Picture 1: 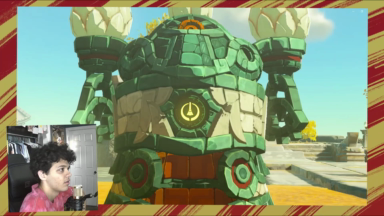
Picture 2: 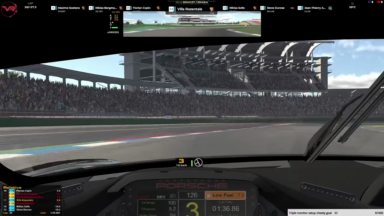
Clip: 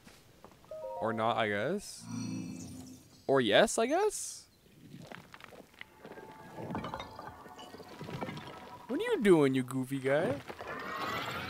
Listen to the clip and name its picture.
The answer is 1